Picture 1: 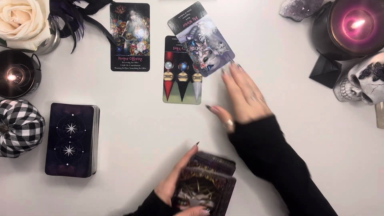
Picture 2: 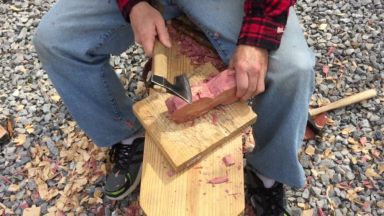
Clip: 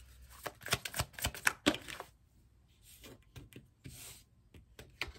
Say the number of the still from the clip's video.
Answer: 1